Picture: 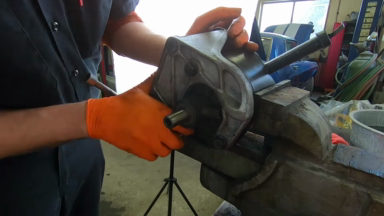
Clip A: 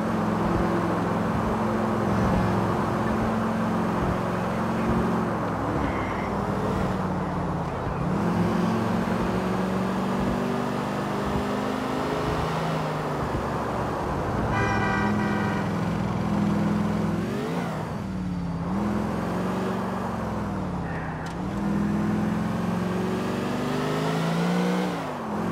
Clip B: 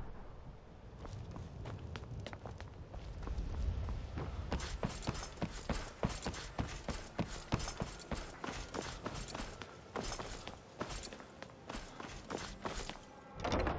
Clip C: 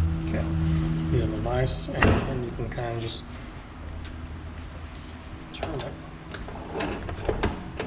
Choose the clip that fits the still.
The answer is C